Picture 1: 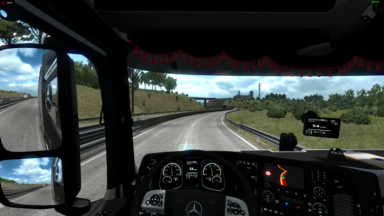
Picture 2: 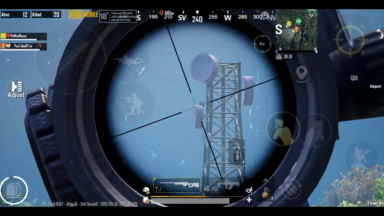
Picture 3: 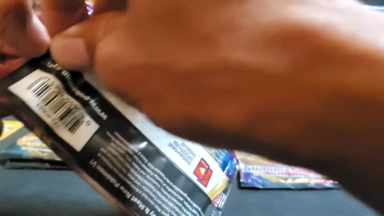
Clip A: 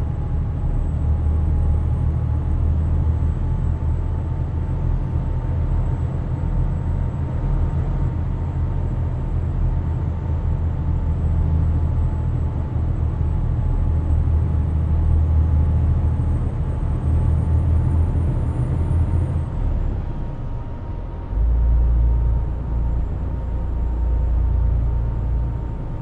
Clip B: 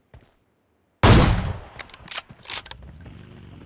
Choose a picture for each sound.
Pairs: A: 1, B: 2